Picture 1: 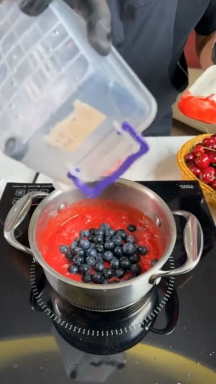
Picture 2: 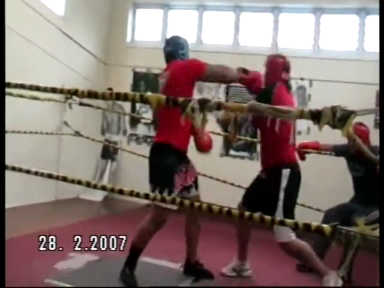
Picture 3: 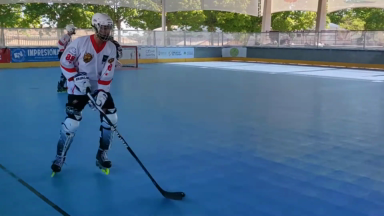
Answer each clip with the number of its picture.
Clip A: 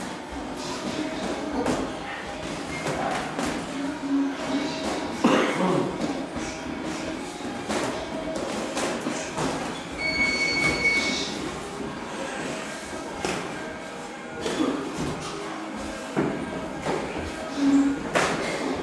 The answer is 2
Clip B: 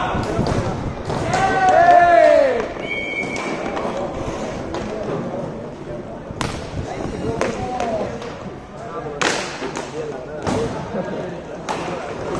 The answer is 3